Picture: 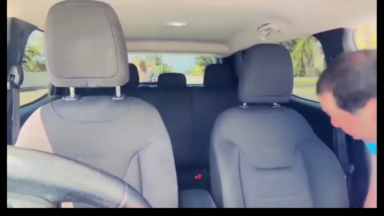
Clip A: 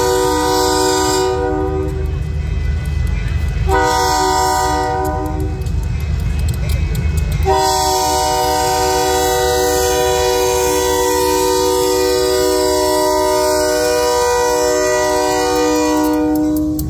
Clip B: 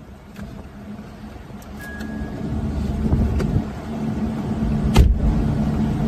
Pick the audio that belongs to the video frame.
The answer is B